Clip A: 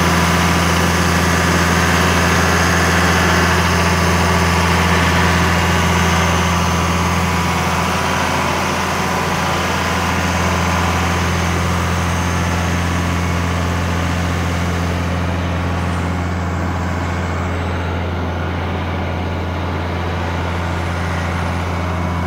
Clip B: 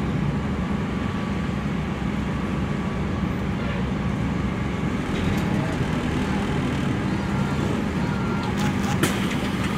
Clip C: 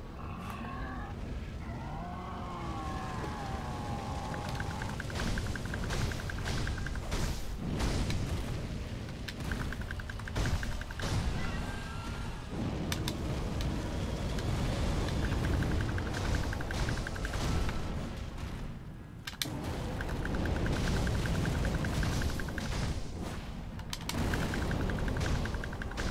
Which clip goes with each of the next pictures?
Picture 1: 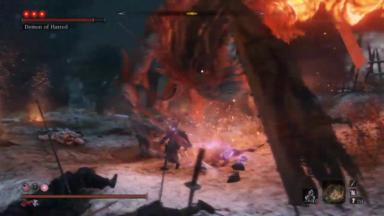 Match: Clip C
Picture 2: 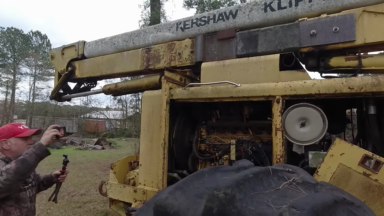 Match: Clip A